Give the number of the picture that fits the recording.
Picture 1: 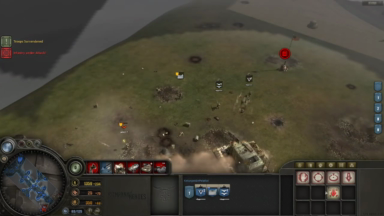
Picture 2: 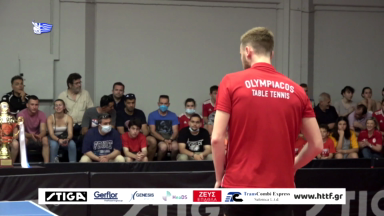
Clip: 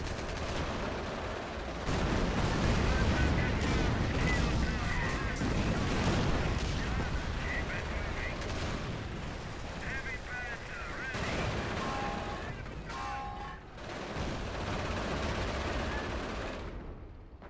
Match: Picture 1